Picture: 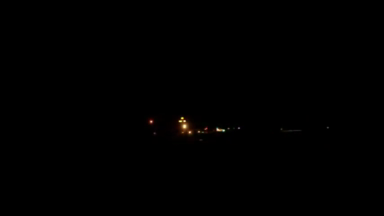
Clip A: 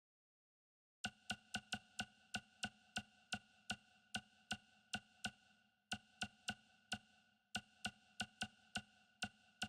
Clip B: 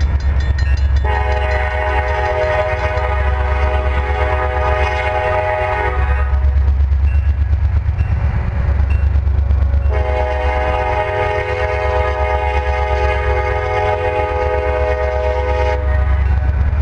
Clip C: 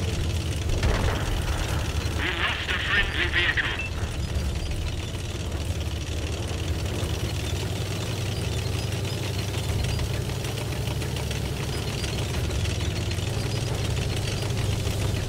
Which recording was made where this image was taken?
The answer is B